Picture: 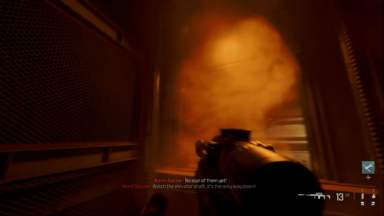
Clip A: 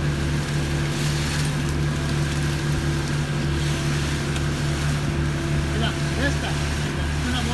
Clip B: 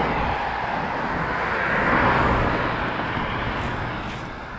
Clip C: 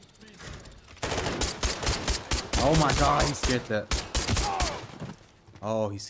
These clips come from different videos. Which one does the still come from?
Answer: C